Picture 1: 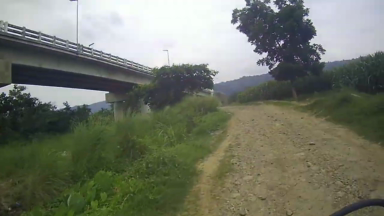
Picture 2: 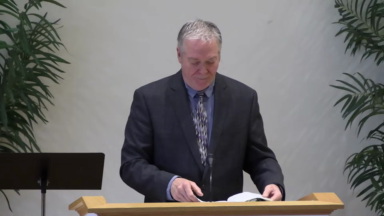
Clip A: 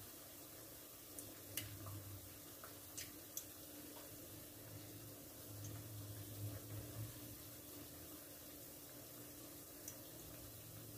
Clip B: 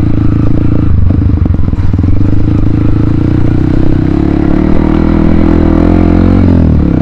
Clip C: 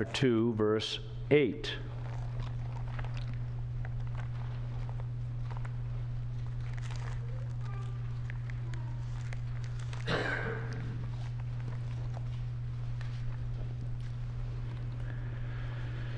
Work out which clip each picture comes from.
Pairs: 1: B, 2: C